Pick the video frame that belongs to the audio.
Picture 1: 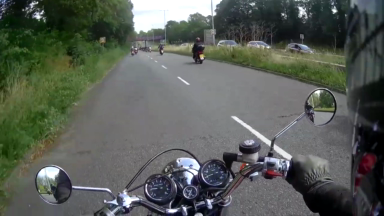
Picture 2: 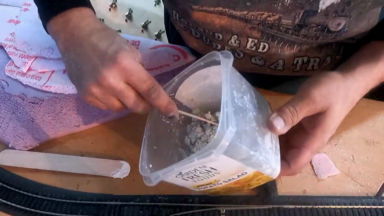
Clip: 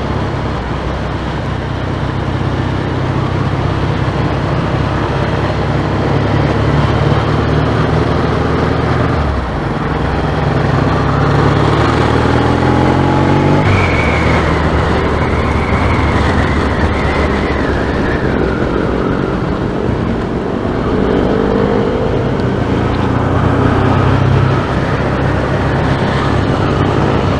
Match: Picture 1